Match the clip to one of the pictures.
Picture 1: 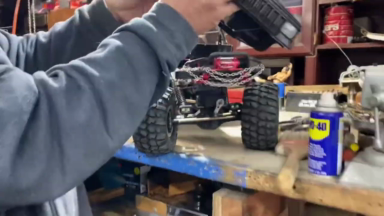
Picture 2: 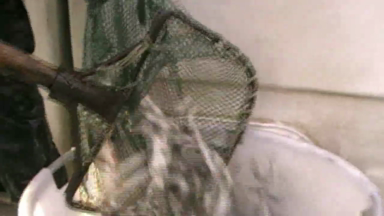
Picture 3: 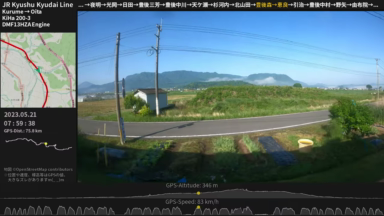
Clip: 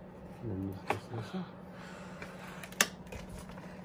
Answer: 1